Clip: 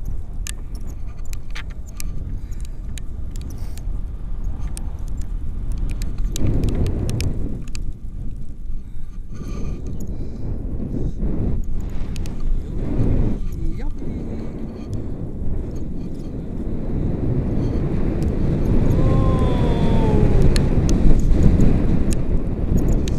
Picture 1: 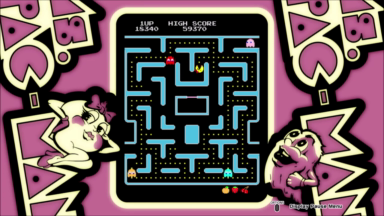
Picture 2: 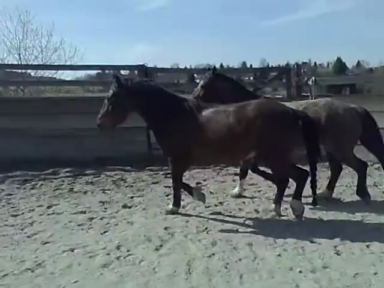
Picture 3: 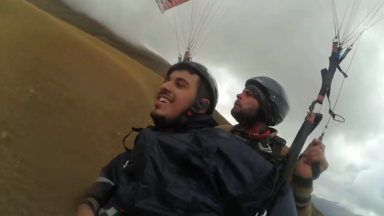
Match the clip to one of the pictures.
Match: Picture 3